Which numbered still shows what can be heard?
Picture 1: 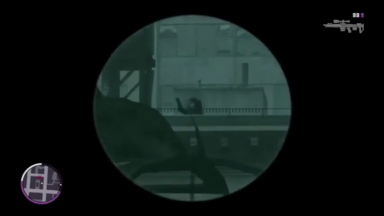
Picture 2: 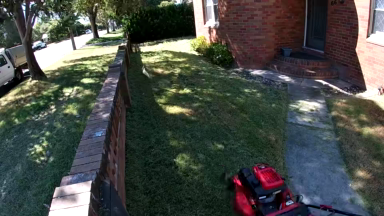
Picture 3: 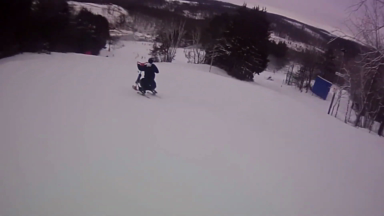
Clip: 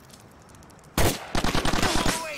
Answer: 1